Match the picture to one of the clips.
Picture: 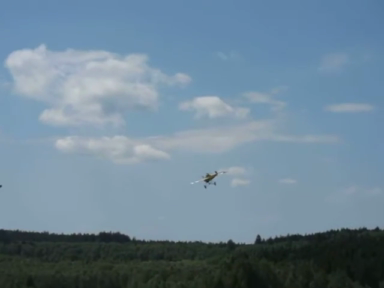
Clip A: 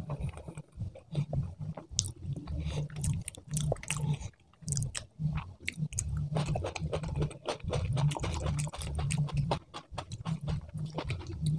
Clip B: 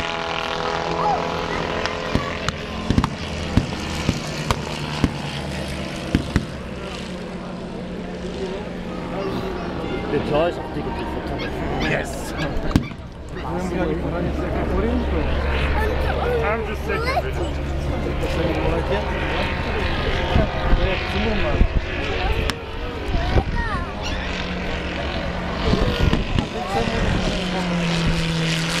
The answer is B